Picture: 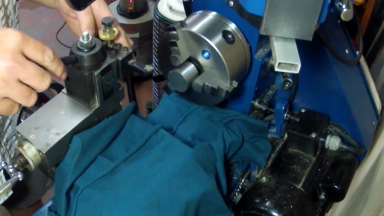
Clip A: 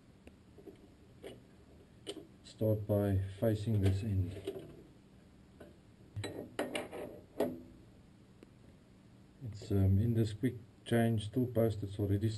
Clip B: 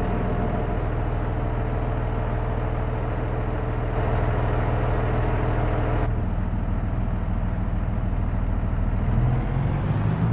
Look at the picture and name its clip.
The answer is A